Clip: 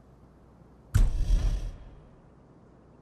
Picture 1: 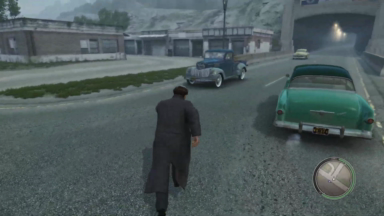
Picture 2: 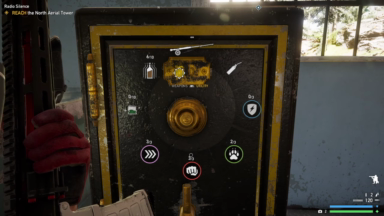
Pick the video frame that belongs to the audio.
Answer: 2